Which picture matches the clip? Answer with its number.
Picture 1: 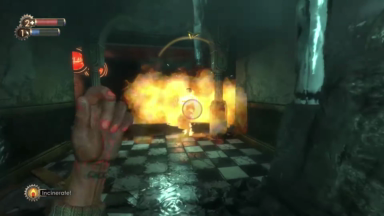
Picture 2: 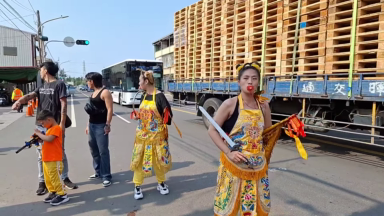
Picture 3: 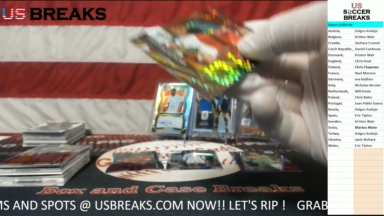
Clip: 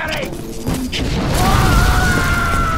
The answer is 1